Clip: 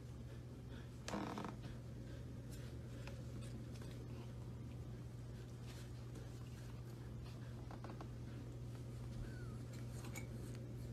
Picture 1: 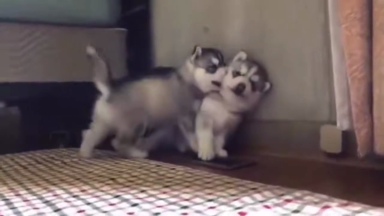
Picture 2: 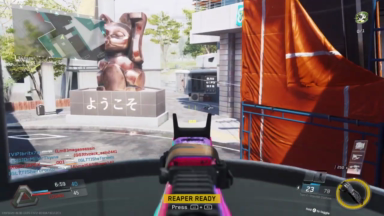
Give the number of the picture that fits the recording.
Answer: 1